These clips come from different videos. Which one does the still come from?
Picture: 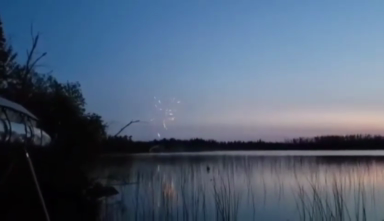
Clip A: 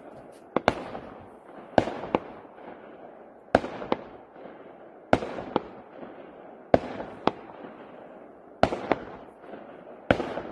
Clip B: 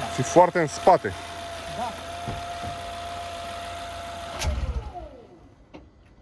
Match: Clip A